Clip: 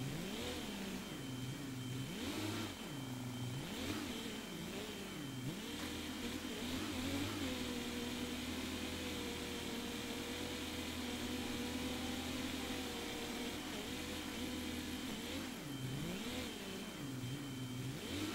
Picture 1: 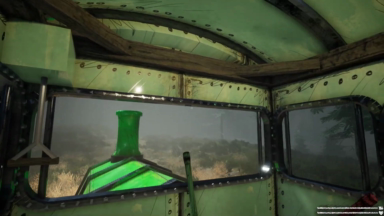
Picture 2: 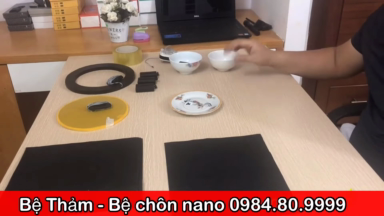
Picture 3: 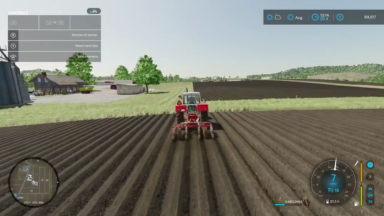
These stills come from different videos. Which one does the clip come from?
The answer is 3